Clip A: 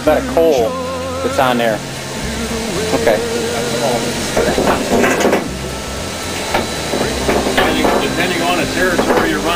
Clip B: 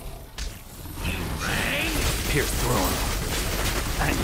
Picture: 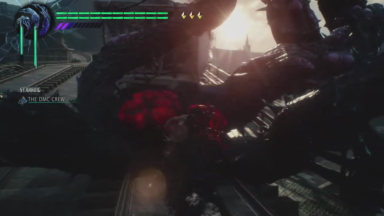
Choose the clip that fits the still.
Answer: B